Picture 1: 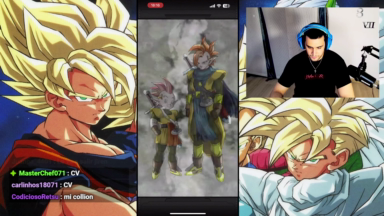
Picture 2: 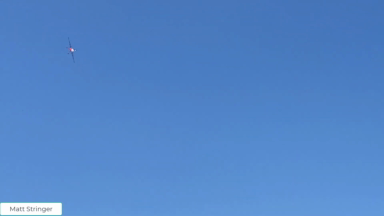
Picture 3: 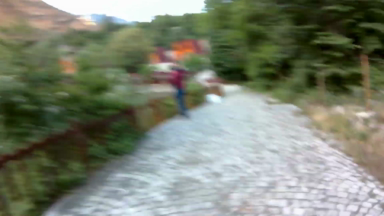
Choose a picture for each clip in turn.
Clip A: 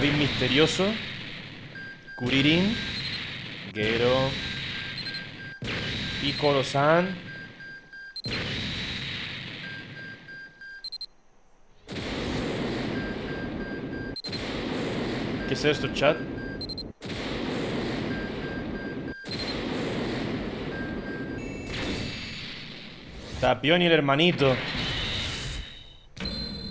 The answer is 1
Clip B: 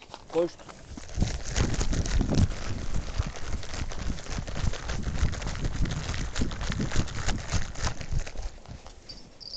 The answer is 3